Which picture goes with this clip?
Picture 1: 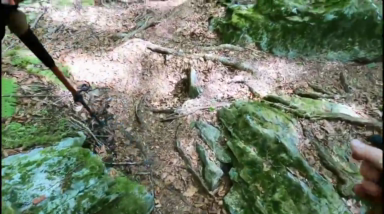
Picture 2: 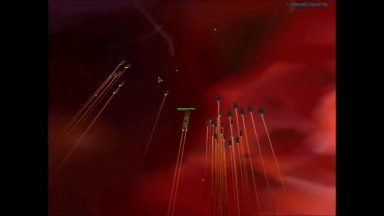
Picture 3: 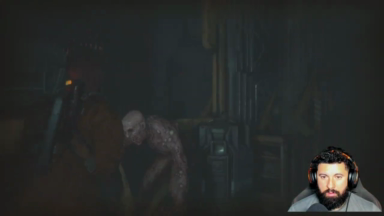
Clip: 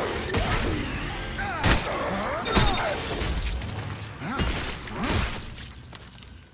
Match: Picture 3